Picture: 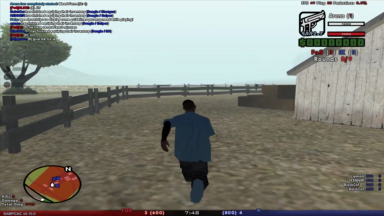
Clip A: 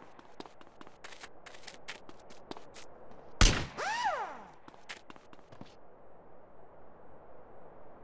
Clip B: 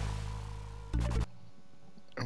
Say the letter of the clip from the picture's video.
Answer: A